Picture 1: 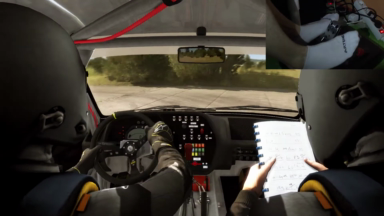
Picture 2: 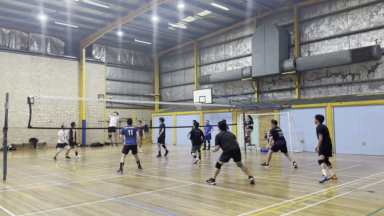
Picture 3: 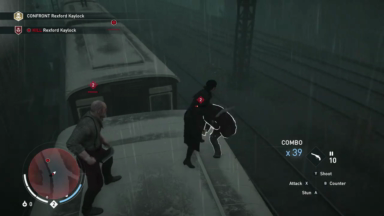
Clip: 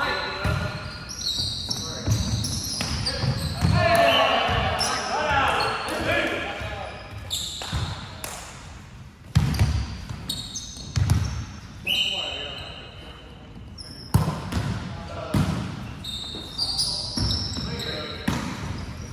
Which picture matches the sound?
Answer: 2